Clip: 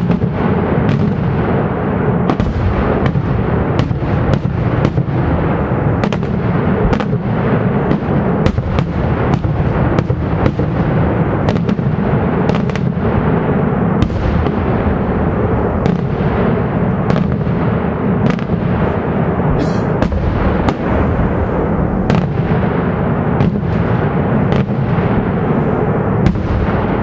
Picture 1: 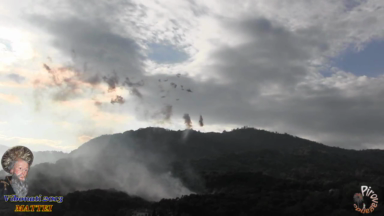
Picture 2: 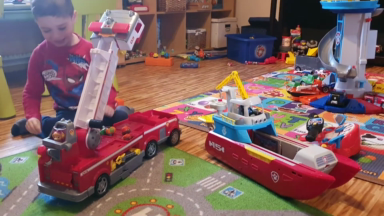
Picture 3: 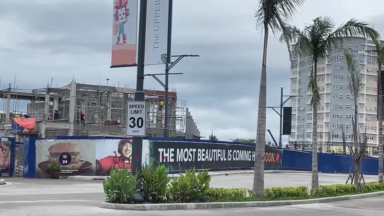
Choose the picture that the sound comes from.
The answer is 1